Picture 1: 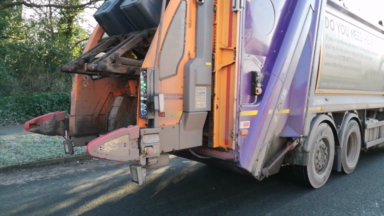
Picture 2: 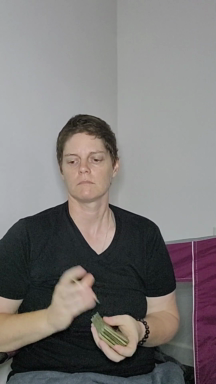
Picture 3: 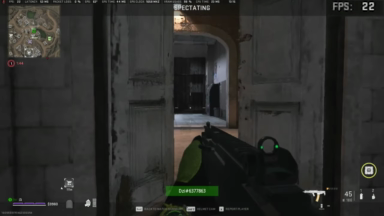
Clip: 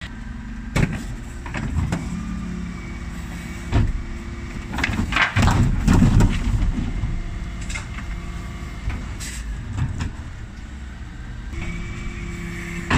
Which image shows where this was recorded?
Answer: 1